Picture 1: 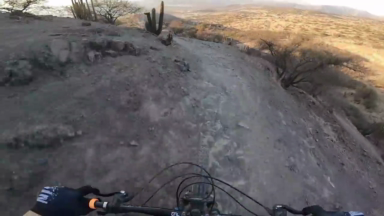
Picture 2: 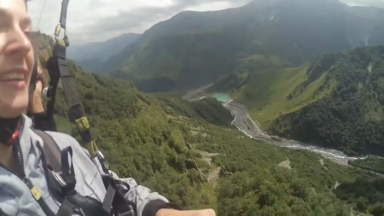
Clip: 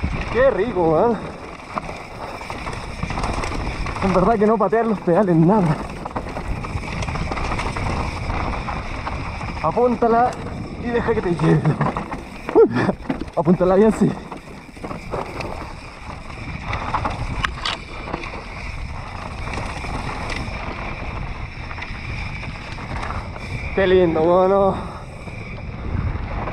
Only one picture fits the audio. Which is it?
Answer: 1